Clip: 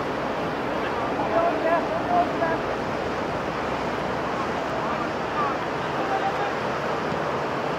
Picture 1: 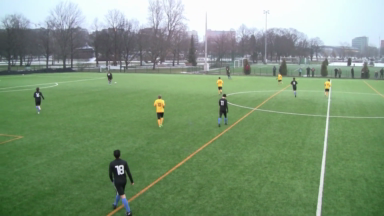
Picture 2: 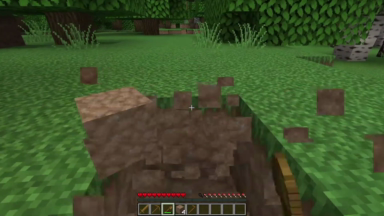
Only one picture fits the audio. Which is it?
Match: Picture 1